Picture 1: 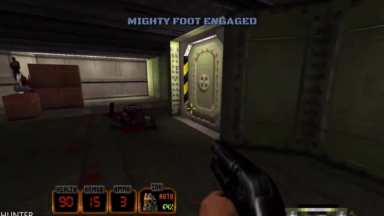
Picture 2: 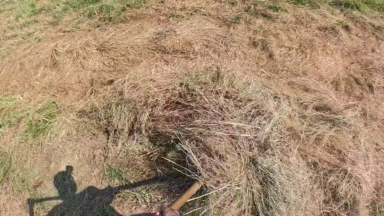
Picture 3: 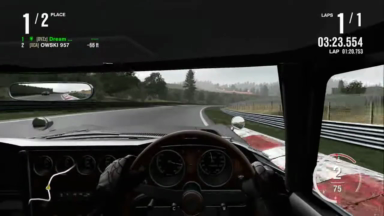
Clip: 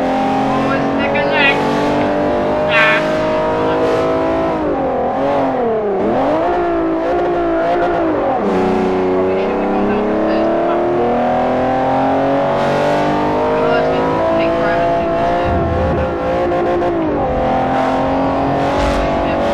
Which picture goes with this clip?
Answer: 3